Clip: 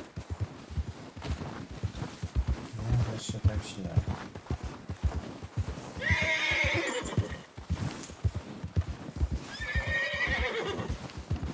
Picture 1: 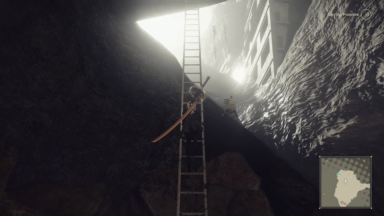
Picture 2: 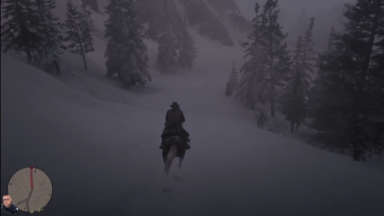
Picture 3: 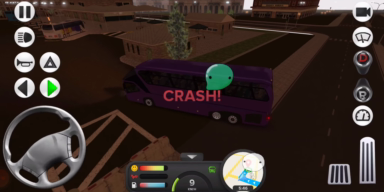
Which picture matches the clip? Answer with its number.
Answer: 2